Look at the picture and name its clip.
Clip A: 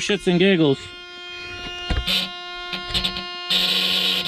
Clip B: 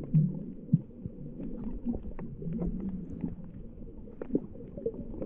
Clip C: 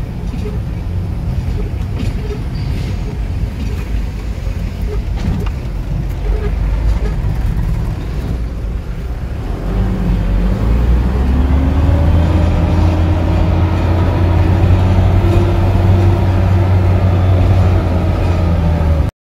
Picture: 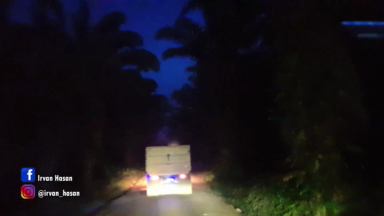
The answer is C